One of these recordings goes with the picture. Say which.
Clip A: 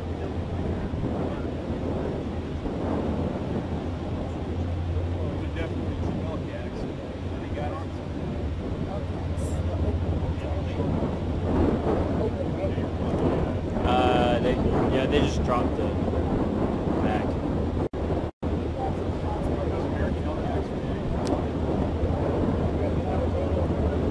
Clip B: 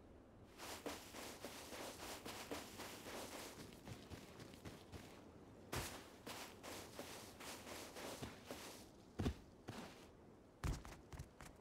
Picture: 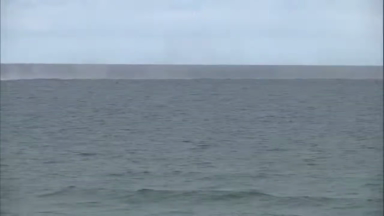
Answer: A